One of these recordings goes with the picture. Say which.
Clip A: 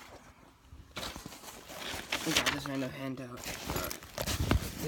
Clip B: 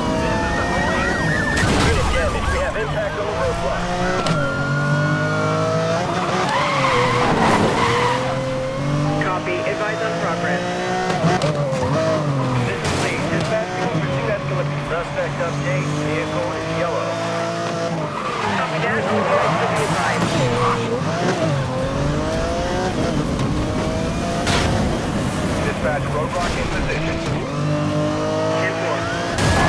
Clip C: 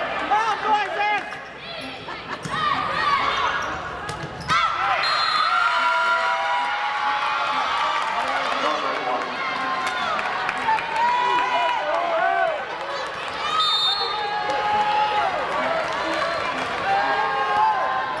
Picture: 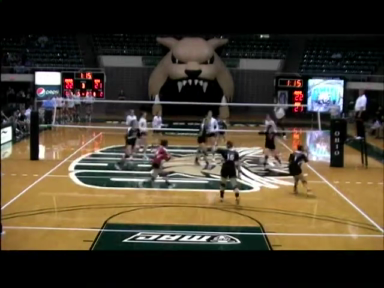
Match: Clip C